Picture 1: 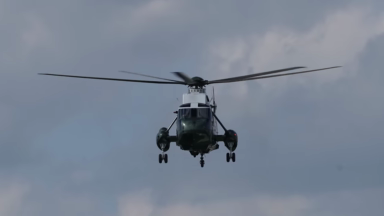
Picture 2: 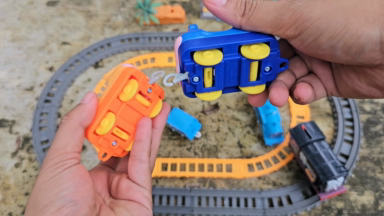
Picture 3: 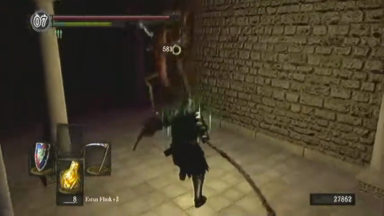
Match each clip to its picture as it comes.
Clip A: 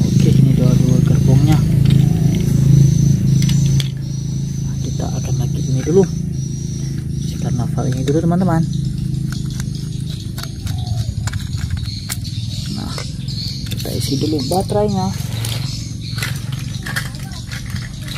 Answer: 2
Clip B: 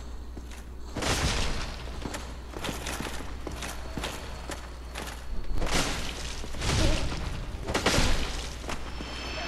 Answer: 3